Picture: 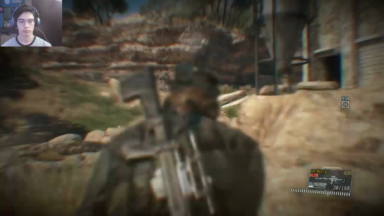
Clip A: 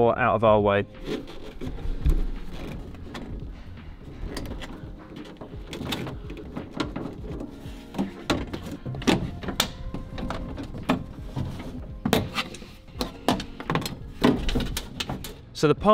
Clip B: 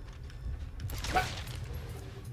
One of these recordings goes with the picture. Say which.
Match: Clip B